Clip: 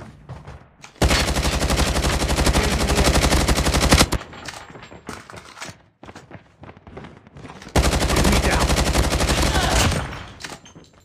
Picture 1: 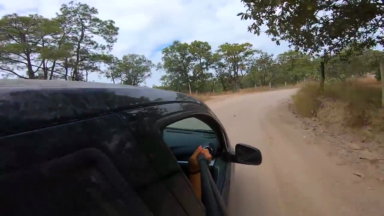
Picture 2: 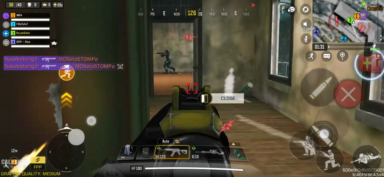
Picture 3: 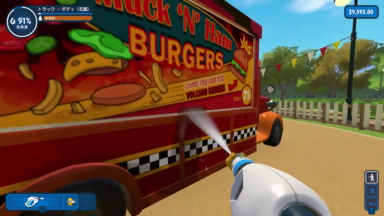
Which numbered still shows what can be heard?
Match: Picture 2